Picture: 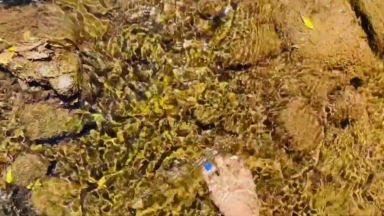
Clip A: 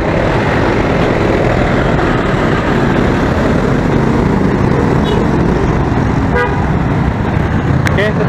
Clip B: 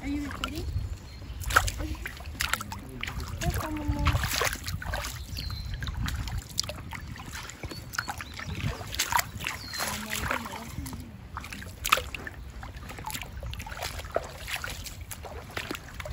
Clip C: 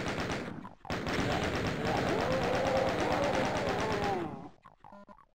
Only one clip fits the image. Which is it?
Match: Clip B